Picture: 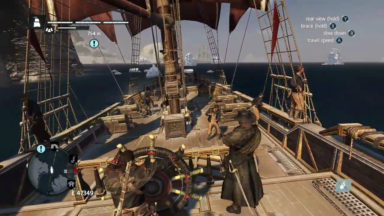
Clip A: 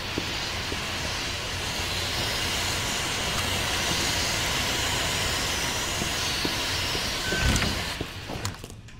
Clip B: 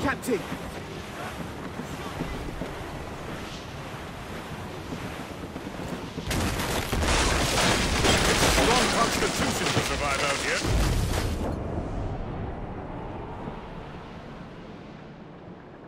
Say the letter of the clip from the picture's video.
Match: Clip B